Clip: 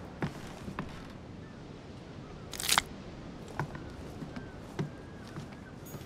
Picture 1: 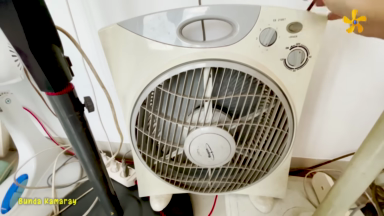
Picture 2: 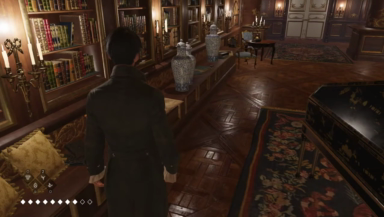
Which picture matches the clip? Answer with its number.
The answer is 2